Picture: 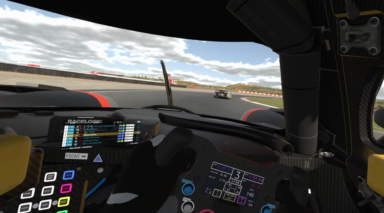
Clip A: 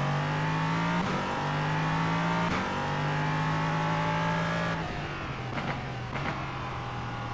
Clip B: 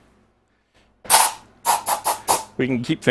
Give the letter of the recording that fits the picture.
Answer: A